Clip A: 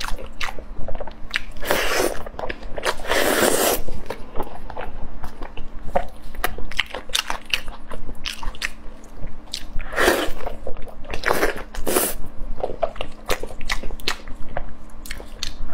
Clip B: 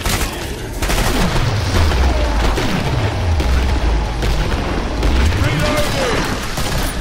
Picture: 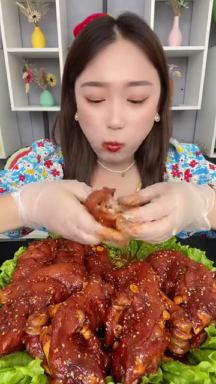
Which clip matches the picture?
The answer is A